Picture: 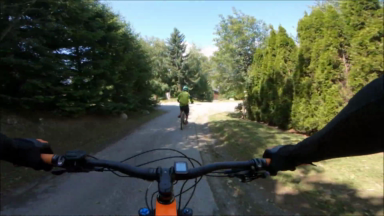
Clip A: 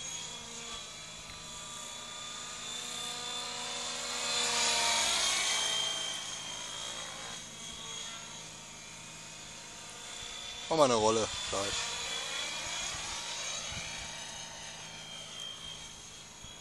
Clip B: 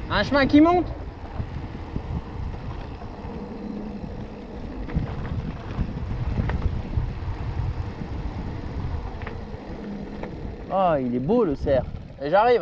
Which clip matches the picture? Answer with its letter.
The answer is B